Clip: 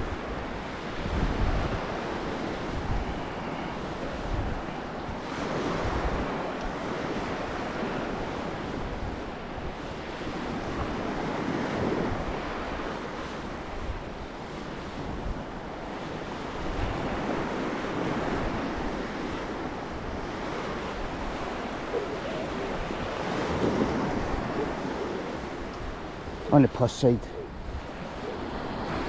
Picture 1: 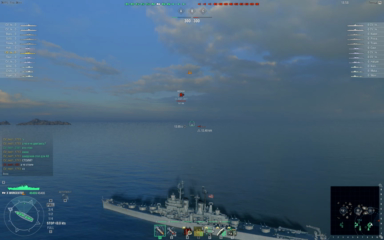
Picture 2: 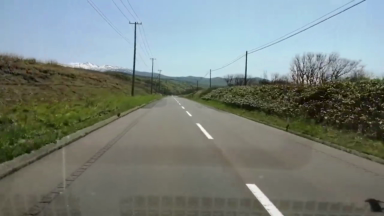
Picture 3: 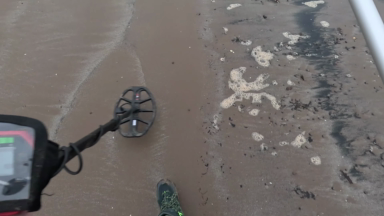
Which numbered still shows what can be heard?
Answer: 3